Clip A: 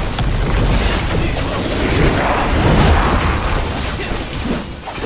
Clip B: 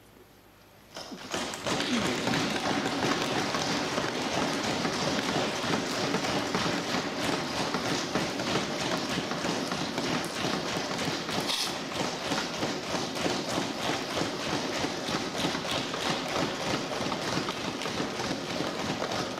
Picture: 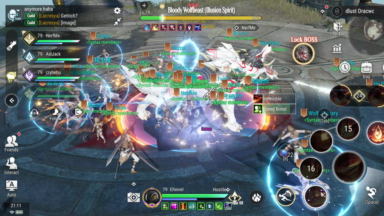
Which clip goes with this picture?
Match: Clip A